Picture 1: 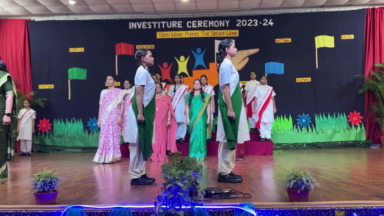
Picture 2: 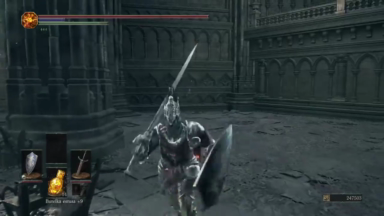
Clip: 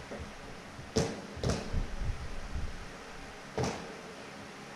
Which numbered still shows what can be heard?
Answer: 1